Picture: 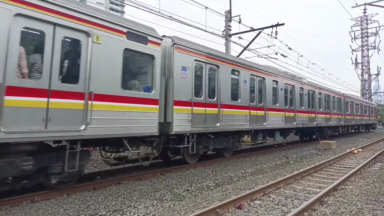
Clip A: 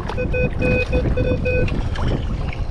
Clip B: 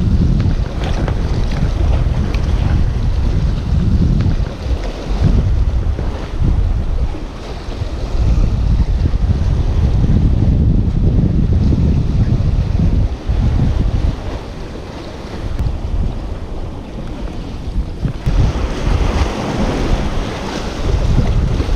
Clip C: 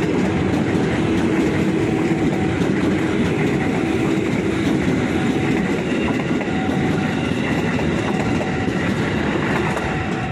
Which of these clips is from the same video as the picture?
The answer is C